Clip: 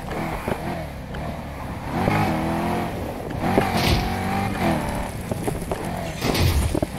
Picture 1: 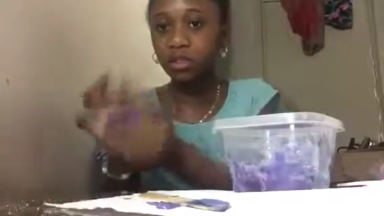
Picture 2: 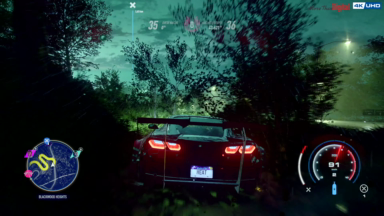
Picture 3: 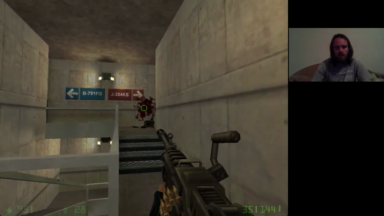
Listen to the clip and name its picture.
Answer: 2